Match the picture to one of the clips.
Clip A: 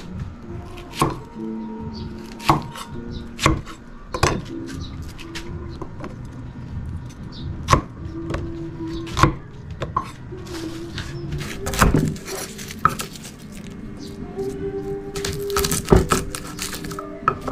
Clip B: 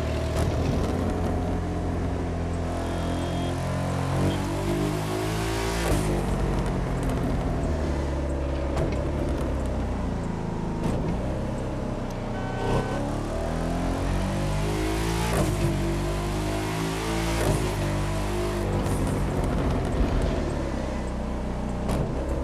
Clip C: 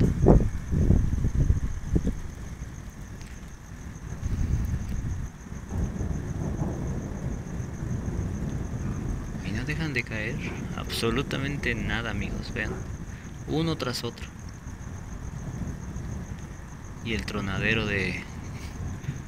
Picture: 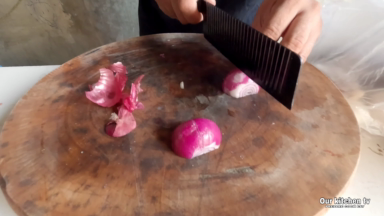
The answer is A